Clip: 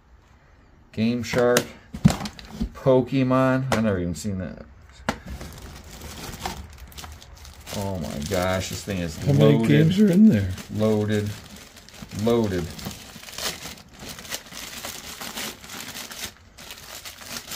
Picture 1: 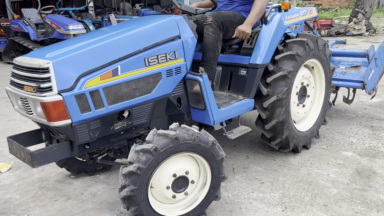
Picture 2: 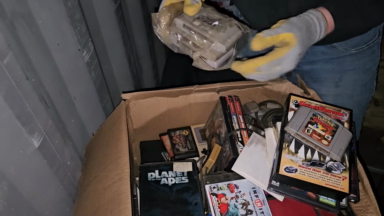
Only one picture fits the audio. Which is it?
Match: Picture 2